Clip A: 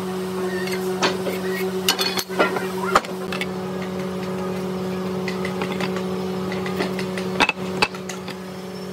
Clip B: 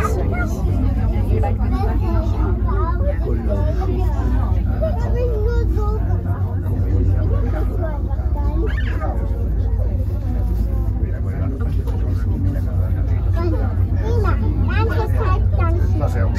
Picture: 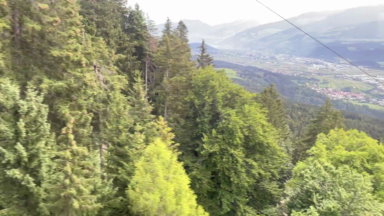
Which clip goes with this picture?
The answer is B